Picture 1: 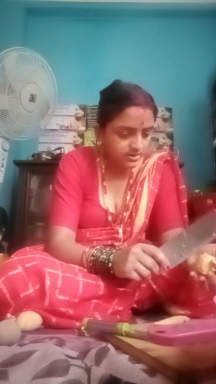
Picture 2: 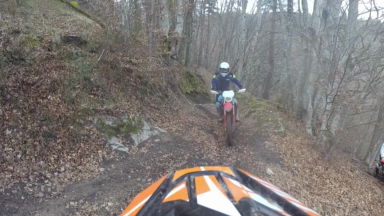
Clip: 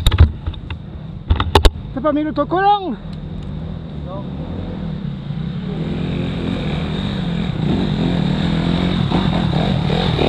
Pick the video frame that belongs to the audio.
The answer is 2